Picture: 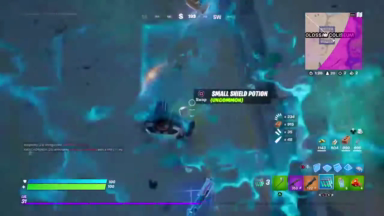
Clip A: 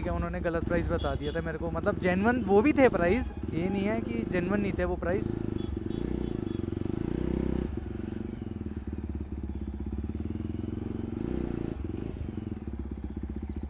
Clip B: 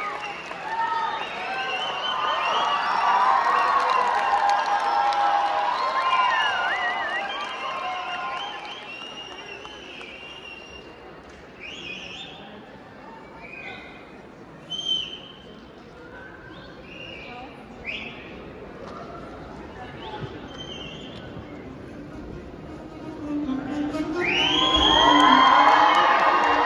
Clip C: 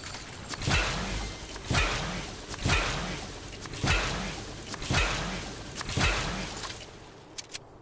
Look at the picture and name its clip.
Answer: C